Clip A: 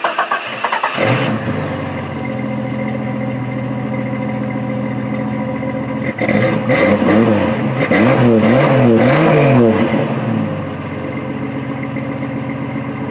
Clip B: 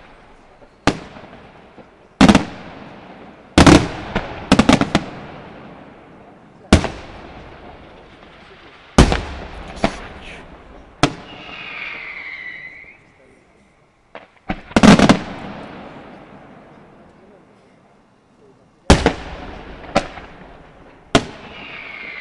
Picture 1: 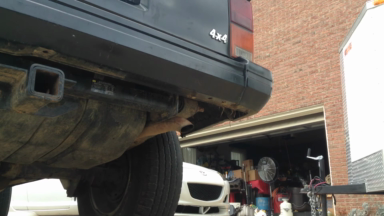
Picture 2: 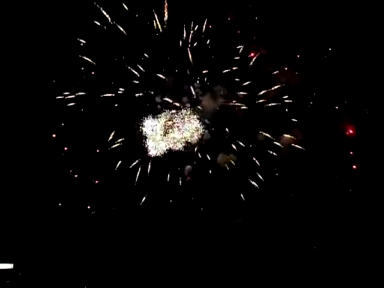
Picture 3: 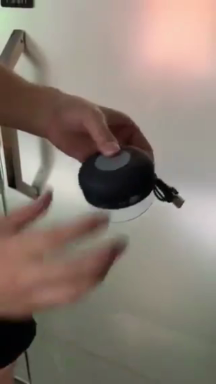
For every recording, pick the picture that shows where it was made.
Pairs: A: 1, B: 2